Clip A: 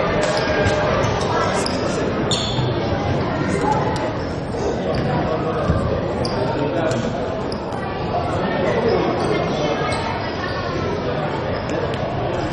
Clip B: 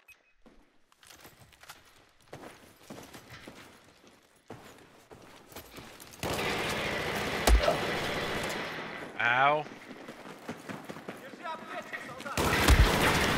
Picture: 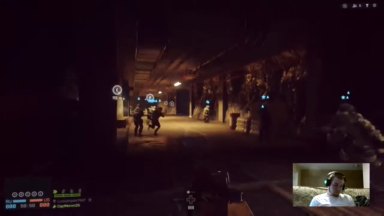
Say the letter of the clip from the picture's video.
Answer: B